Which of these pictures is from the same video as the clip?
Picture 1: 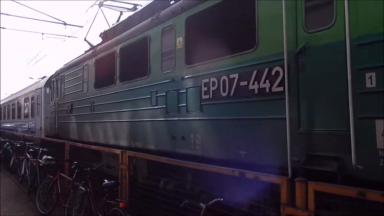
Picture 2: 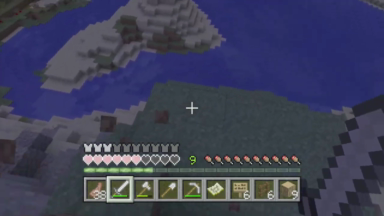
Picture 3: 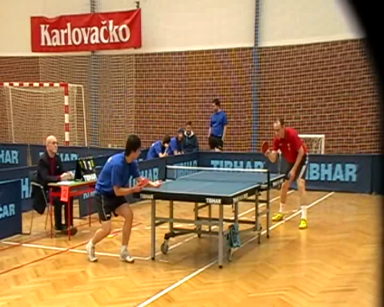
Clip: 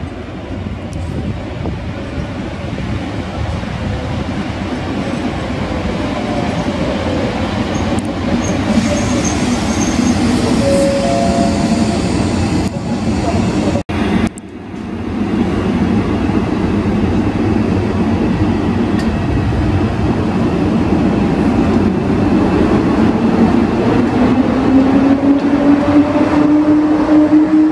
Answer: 1